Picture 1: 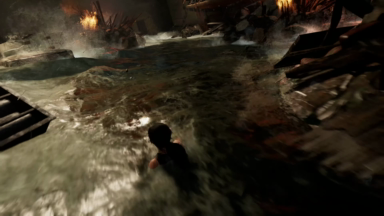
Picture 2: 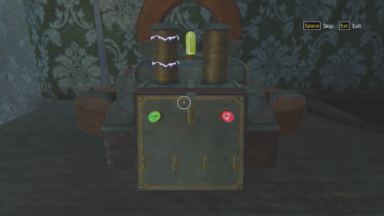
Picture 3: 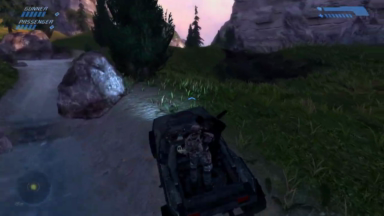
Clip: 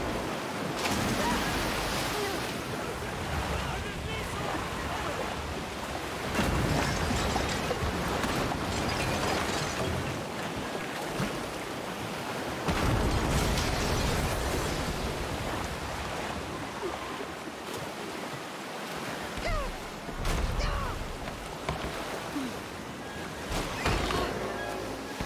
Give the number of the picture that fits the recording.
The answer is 1